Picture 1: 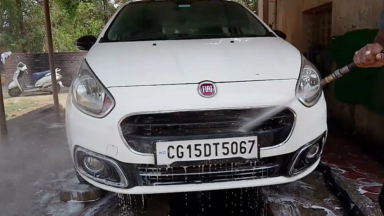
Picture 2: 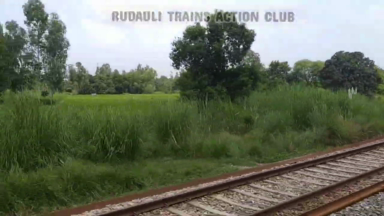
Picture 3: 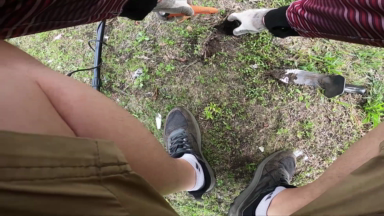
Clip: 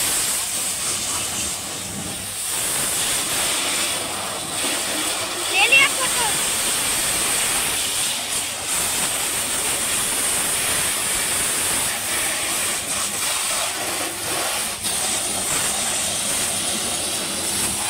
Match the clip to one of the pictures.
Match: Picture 1